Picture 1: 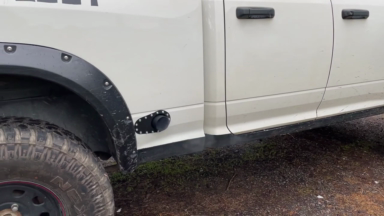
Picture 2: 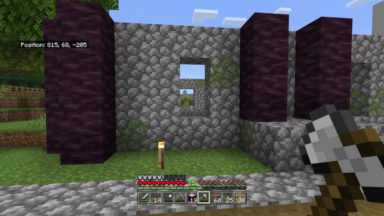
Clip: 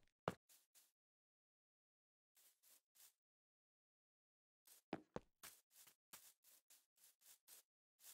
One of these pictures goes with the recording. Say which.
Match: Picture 2